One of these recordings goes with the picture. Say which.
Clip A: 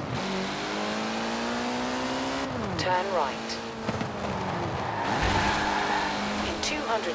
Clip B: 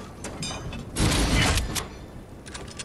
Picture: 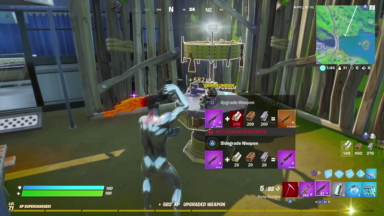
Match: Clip B